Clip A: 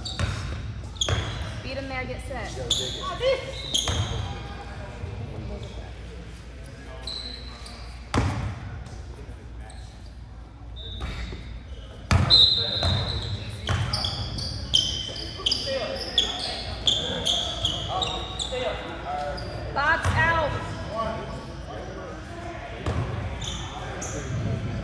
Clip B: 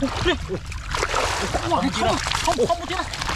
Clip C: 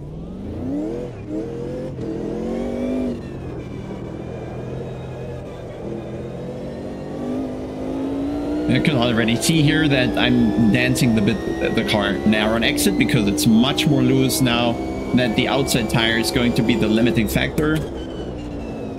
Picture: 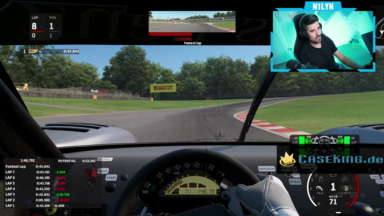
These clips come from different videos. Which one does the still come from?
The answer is C